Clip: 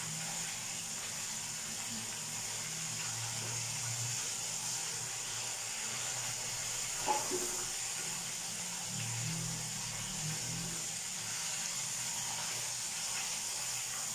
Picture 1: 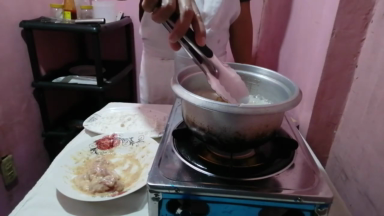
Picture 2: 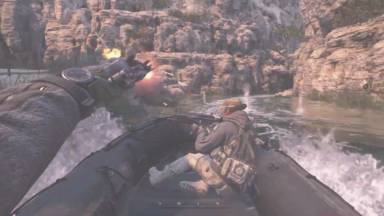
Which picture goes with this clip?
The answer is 1